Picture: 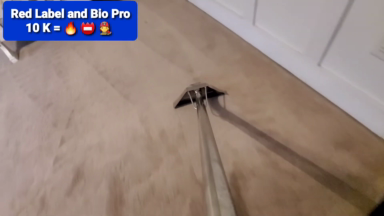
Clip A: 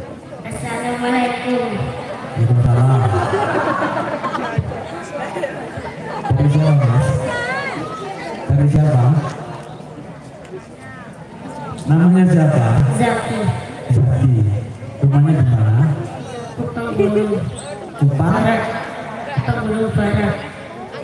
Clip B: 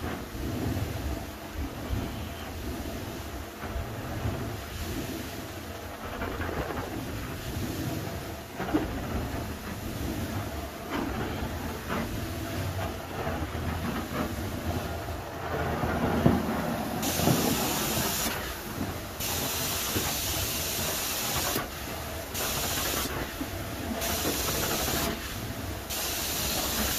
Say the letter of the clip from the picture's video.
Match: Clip B